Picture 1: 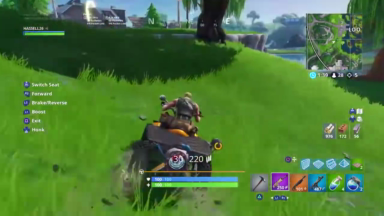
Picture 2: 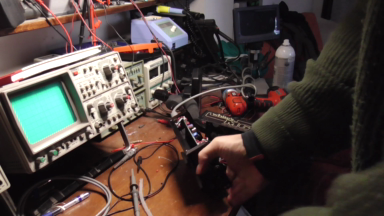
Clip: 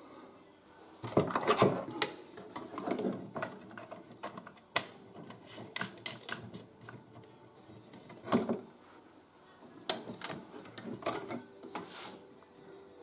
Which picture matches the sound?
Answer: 2